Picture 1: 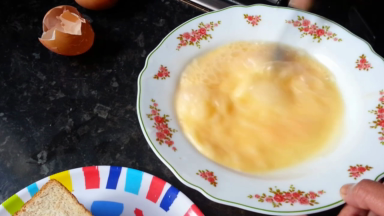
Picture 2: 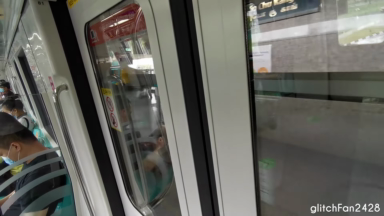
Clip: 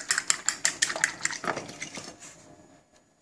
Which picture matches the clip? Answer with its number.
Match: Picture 1